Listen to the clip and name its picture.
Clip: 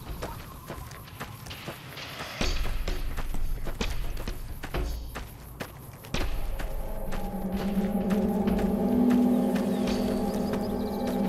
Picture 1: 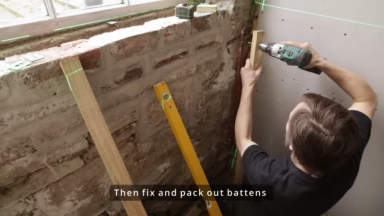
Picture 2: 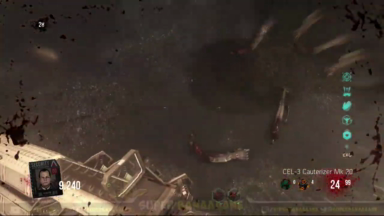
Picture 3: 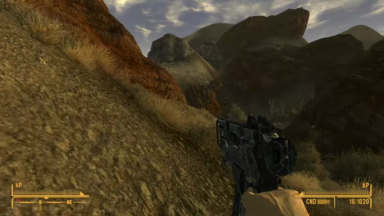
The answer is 3